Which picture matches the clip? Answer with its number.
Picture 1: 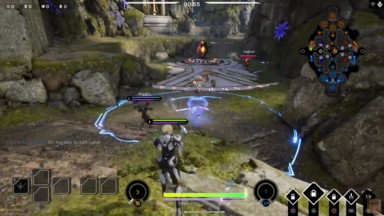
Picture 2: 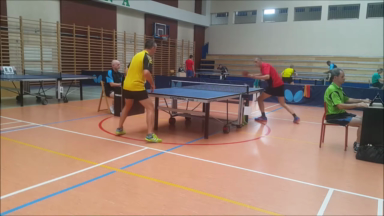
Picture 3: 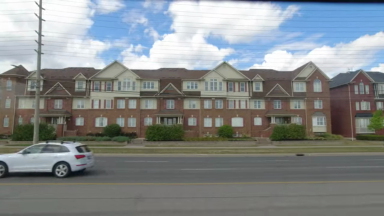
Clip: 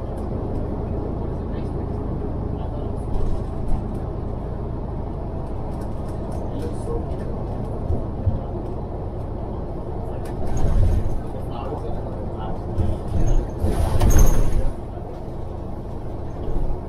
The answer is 3